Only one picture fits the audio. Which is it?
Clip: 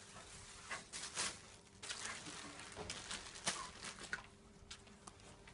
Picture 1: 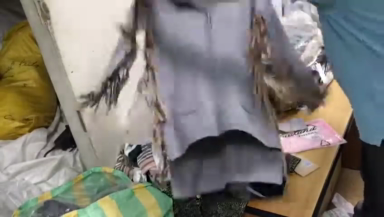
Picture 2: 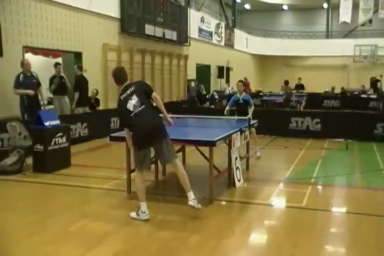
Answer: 1